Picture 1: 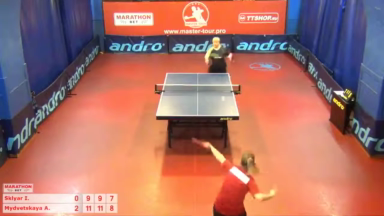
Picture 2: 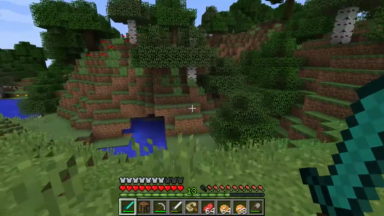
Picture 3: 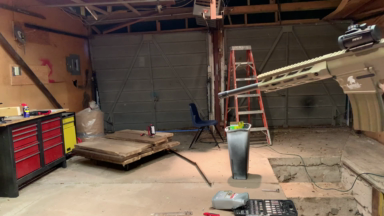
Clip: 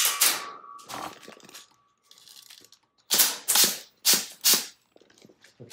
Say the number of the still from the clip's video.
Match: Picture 3